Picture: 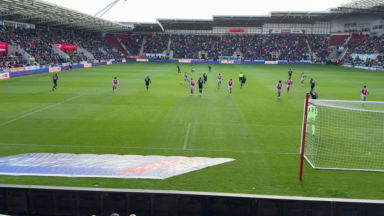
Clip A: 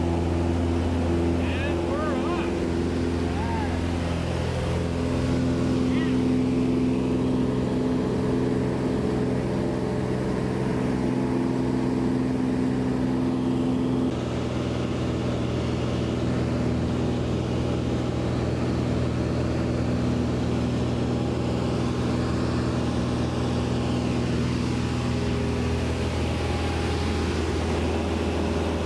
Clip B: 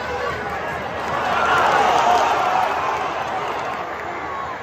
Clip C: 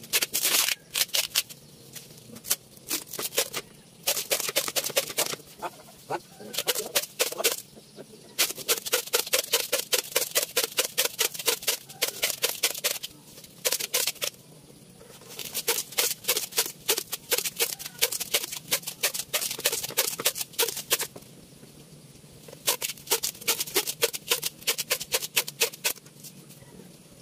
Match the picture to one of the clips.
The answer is B